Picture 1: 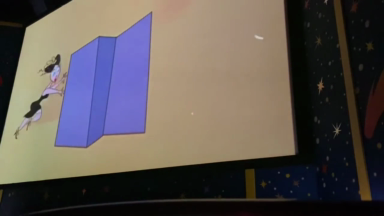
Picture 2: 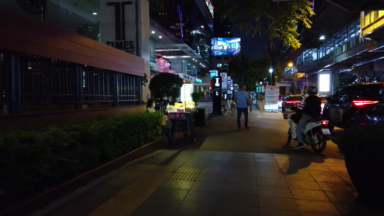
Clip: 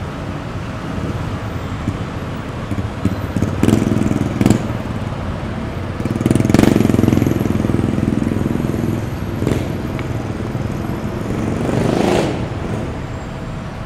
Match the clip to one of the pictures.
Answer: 2